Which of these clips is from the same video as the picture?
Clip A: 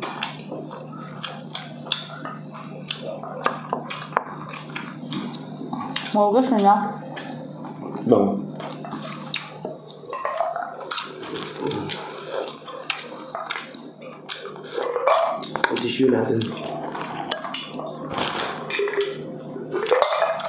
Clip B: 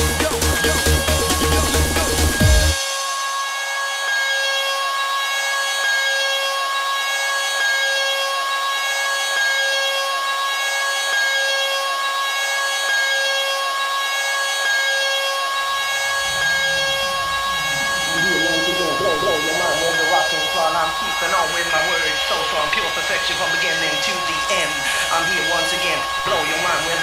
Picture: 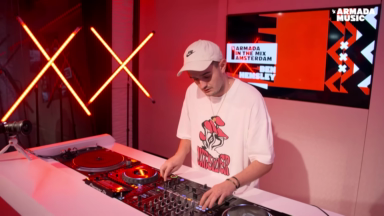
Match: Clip B